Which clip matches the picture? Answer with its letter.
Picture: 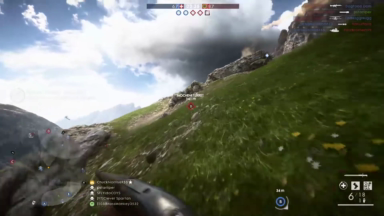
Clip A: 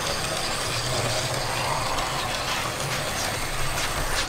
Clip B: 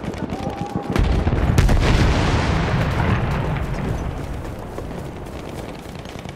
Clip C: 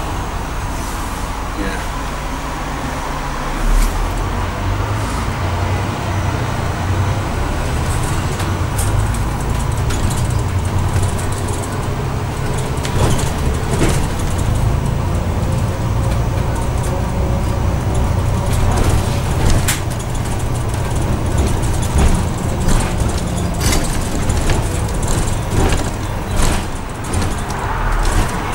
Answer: B